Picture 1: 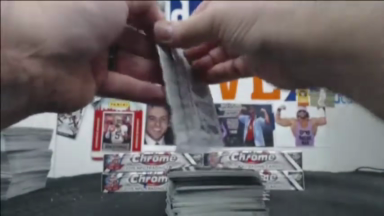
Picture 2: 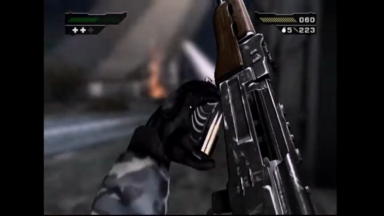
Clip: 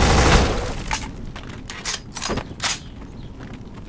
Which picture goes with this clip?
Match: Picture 2